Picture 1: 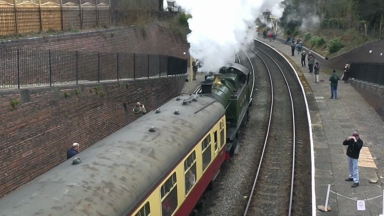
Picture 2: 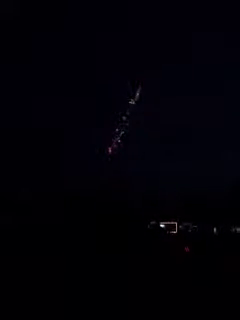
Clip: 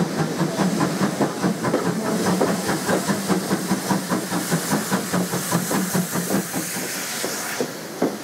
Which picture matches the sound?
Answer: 1